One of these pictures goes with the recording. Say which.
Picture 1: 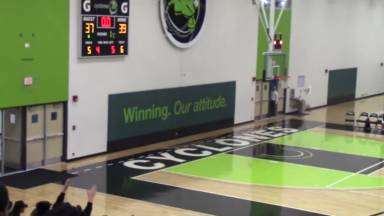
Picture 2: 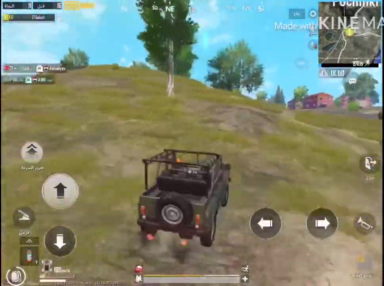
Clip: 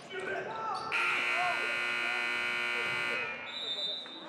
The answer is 1